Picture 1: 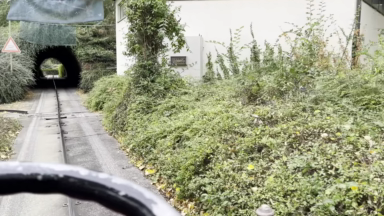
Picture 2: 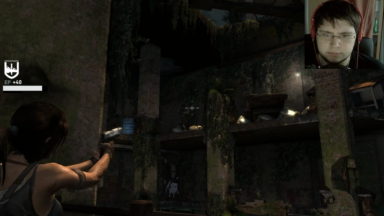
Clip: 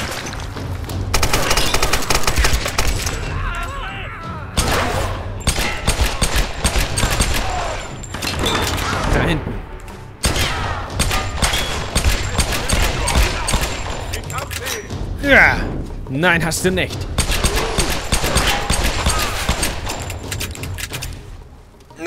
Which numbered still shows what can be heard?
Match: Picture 2